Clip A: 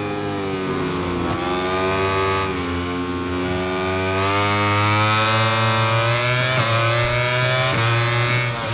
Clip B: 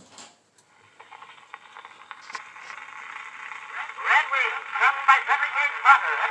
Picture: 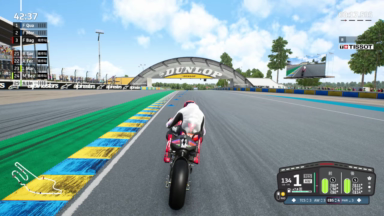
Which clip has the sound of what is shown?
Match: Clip A